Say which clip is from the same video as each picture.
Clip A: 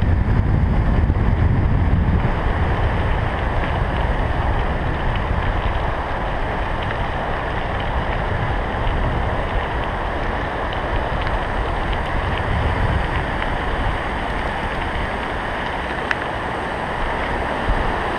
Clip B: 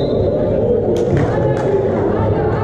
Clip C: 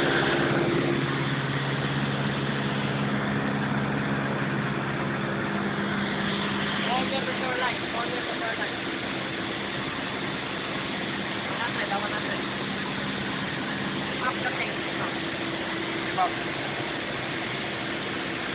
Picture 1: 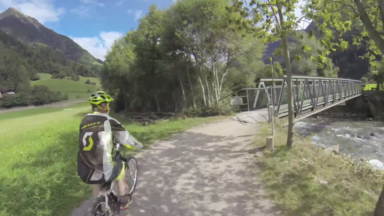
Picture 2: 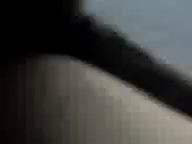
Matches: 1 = A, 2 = C